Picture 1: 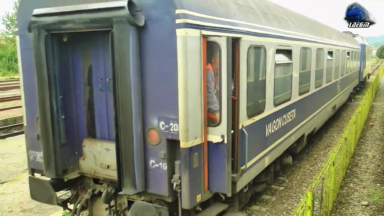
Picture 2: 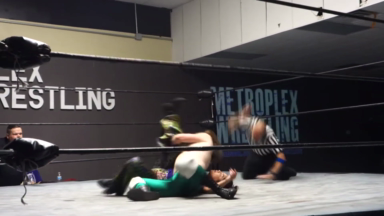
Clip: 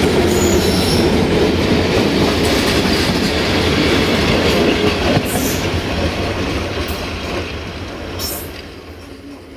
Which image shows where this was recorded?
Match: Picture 1